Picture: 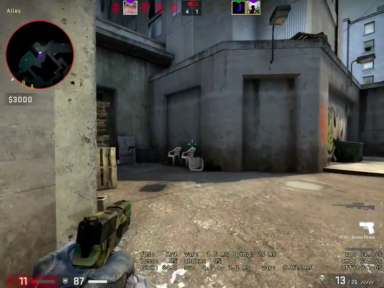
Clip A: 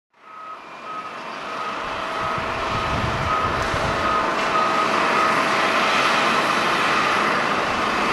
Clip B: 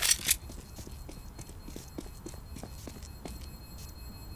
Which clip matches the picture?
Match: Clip B